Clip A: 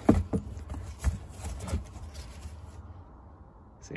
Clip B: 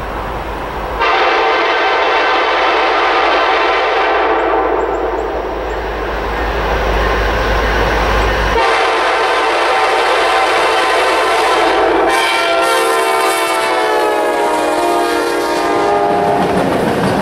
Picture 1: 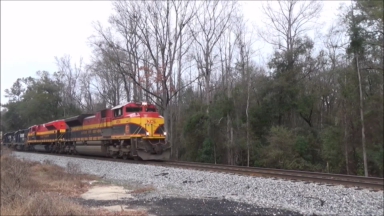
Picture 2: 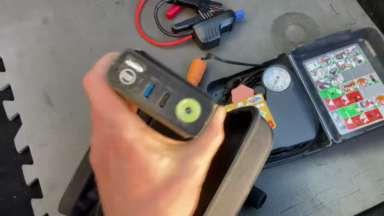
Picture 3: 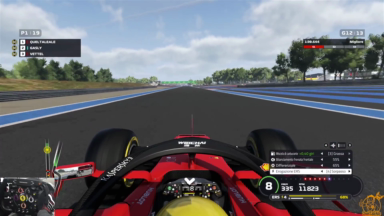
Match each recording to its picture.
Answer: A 2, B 1